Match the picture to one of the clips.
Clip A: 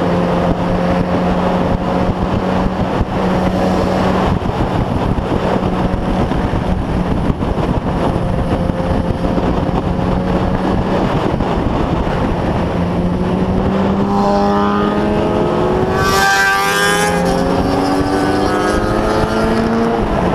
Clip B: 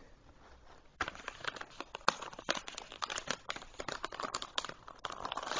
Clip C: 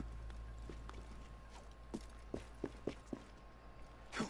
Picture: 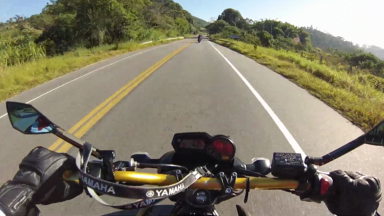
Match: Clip A